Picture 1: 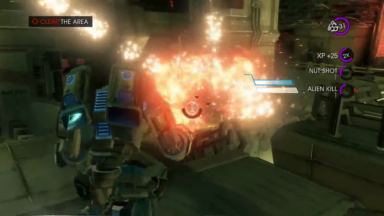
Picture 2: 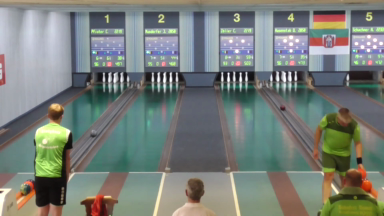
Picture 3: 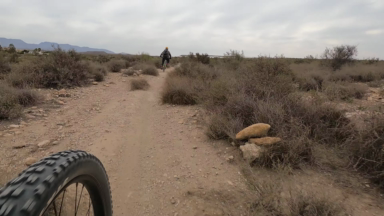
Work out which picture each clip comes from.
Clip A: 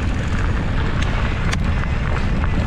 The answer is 3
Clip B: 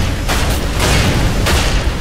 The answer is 1